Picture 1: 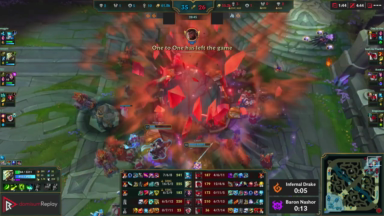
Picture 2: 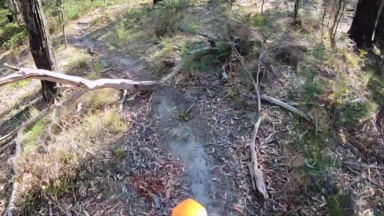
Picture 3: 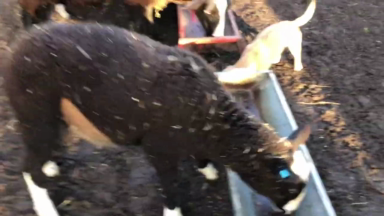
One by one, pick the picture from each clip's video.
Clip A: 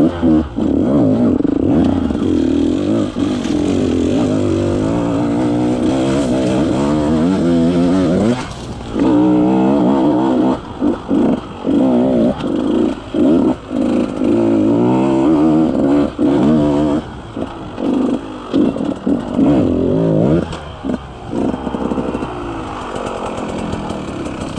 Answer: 2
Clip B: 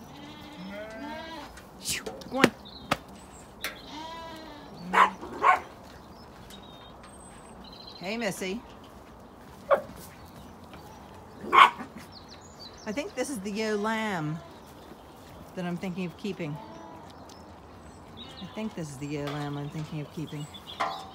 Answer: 3